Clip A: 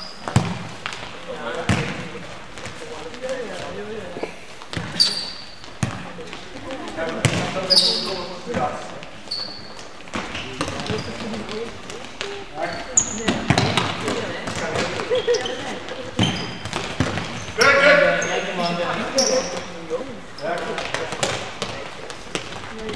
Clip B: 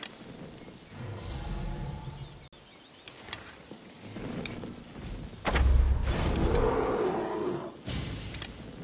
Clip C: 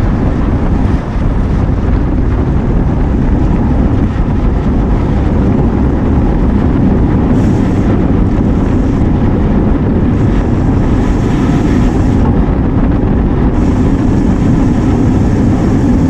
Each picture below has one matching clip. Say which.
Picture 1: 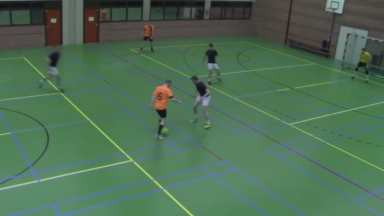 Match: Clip A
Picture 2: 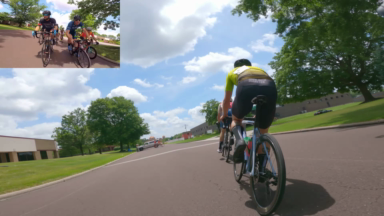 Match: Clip C